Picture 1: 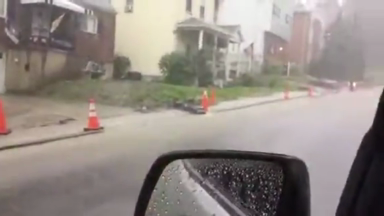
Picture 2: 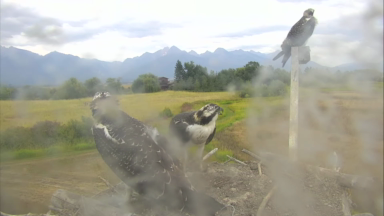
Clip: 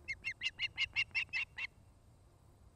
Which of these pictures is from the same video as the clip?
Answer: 2